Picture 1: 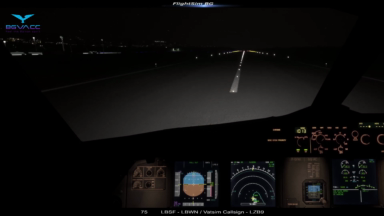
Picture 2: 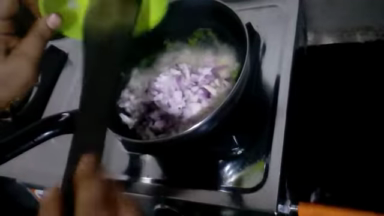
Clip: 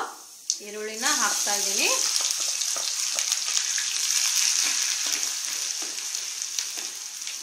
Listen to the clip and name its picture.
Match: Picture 2